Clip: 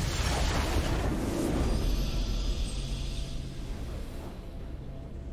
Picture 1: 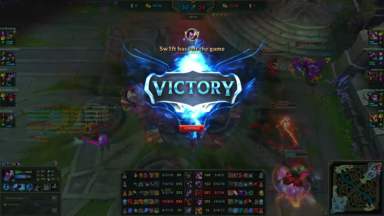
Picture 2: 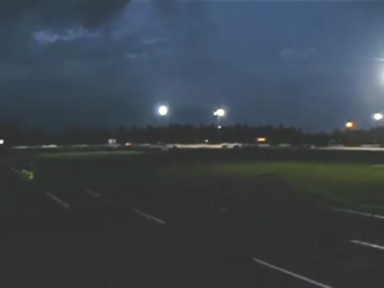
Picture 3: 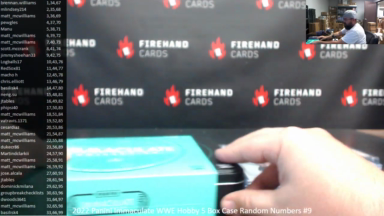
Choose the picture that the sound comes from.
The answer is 1